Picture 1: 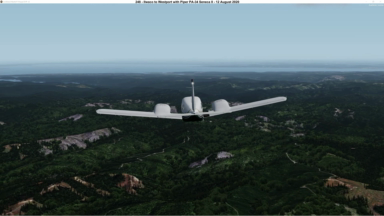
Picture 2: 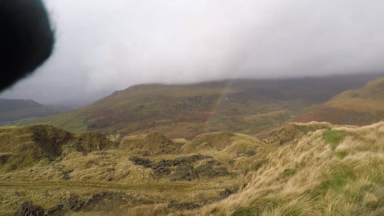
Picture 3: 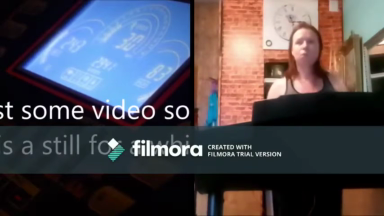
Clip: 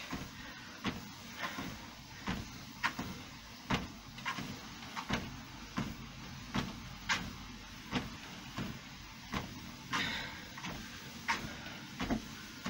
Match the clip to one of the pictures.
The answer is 3